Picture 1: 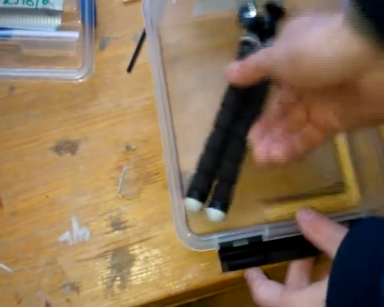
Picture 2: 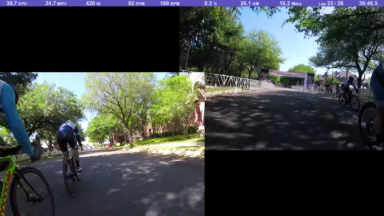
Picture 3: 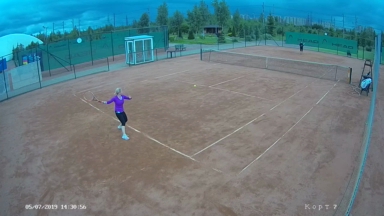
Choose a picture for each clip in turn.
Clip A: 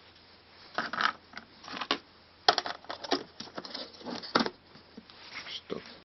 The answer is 1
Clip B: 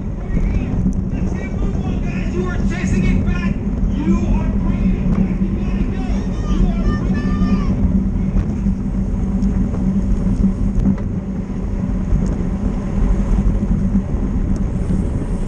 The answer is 2